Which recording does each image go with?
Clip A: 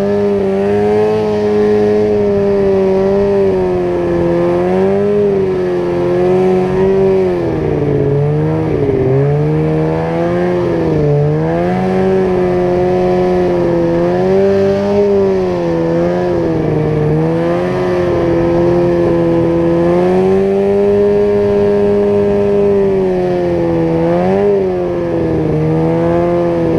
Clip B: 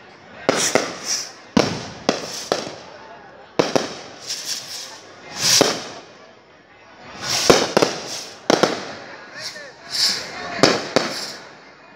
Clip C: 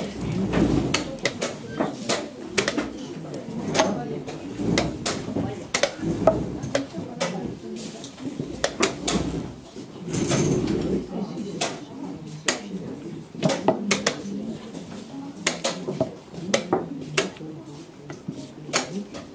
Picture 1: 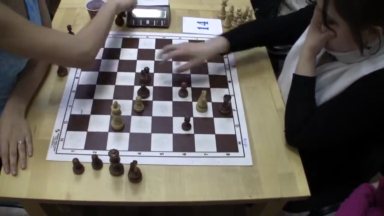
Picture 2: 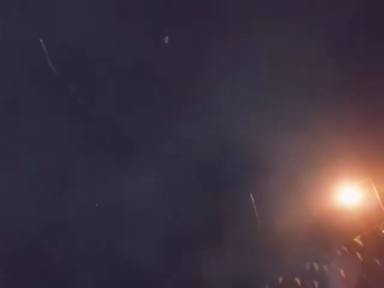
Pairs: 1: C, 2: B